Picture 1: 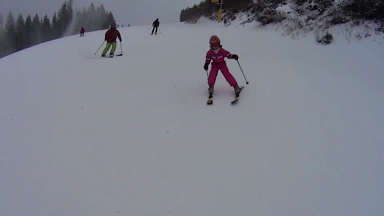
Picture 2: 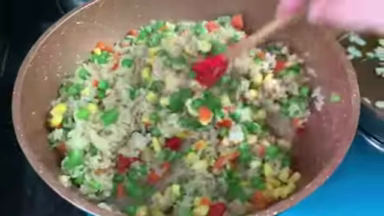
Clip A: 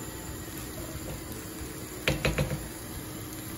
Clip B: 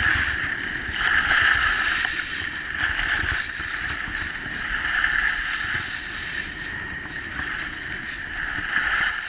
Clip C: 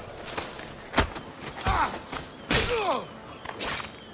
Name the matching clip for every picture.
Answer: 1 B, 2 A